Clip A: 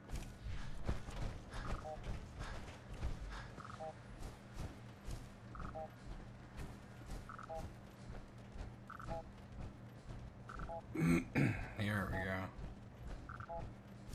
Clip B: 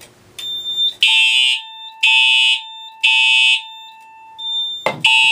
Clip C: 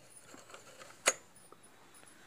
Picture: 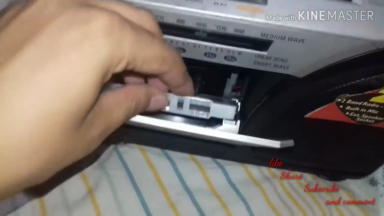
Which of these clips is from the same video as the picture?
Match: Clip C